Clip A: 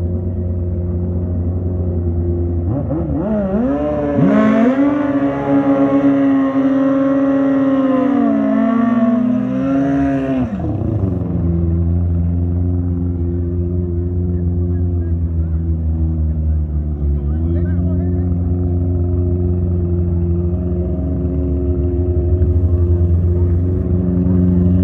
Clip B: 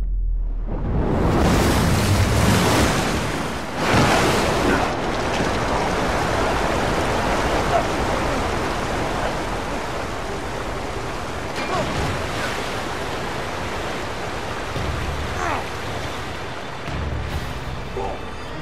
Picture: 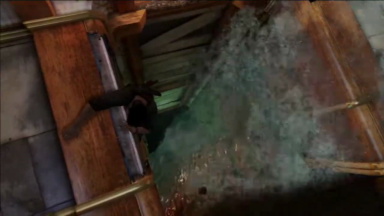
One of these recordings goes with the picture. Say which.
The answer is B